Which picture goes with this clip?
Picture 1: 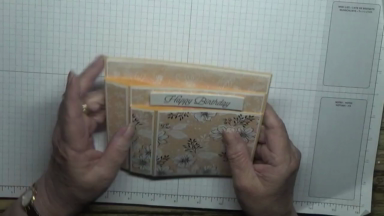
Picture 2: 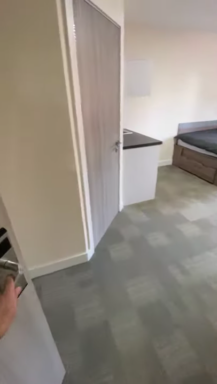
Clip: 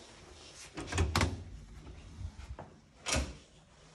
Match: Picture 2